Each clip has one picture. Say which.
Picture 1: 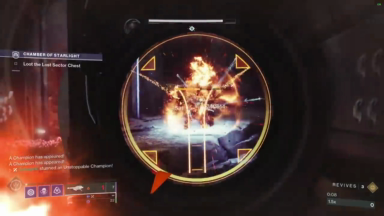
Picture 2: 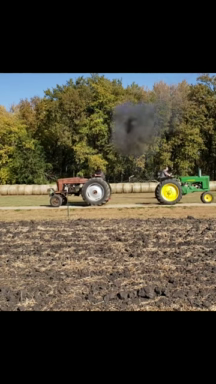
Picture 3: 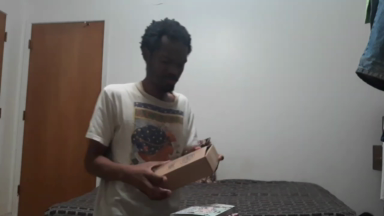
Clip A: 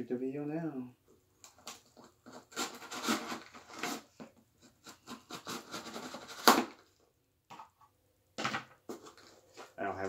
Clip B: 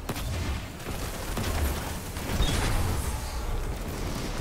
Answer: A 3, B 1